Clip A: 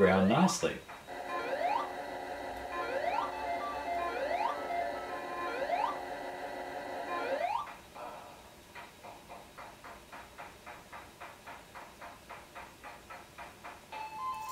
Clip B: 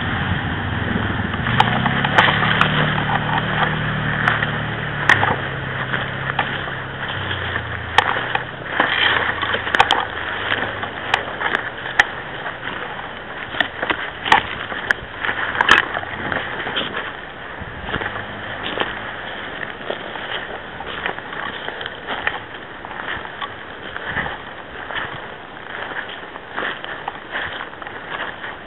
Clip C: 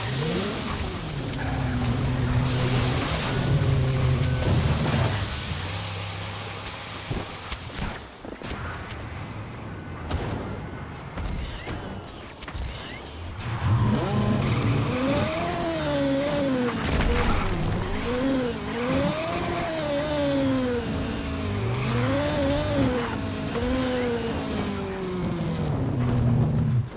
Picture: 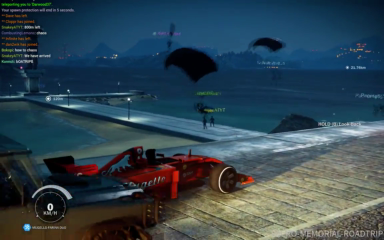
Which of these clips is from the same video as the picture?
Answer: C